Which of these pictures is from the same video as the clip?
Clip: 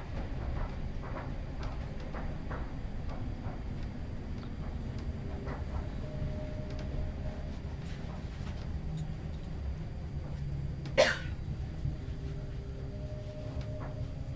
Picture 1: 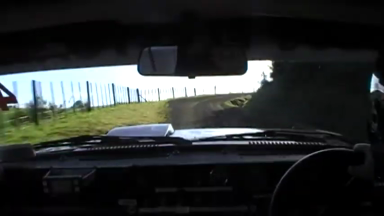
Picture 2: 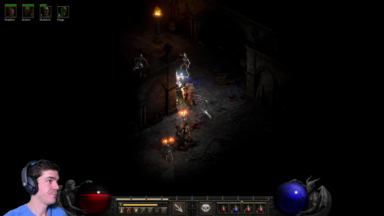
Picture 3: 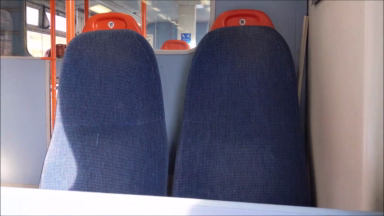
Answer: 3